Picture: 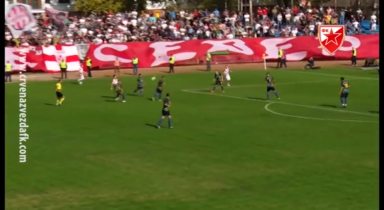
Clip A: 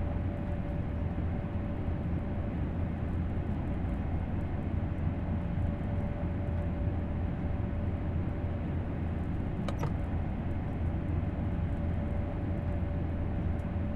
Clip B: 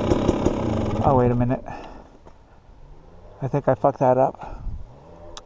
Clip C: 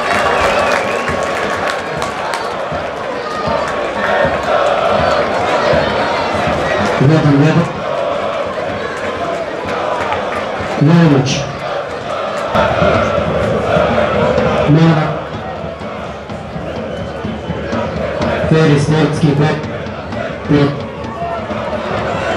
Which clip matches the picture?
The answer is C